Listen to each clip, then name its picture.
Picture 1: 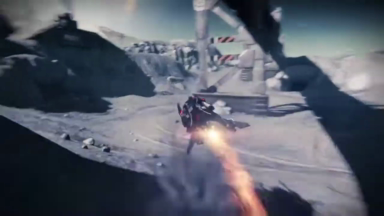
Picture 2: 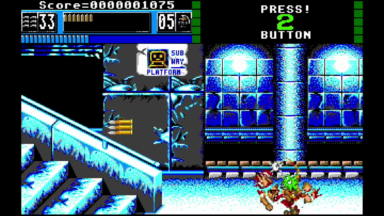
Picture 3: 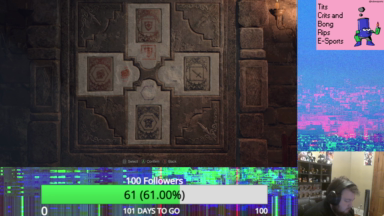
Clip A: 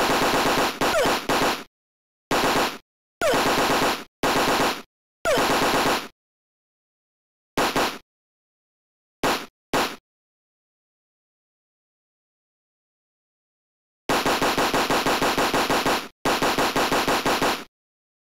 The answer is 2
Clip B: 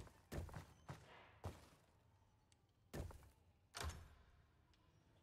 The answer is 3